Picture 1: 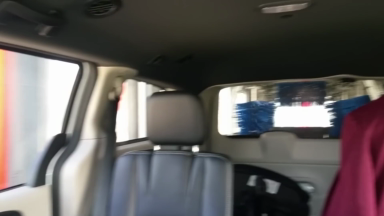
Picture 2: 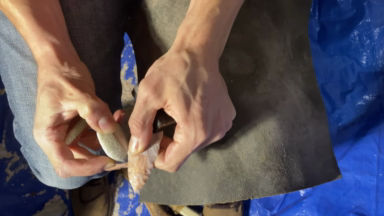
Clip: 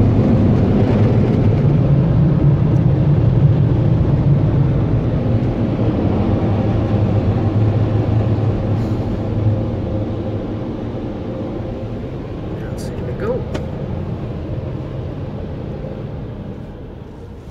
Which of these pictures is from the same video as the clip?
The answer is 1